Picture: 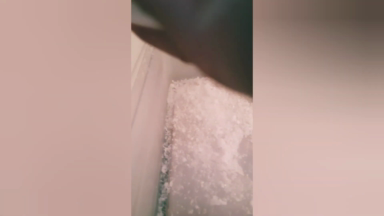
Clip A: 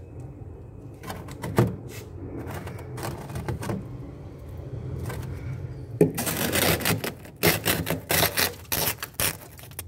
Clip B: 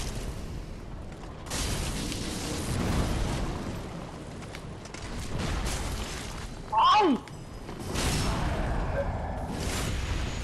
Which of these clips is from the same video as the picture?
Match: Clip A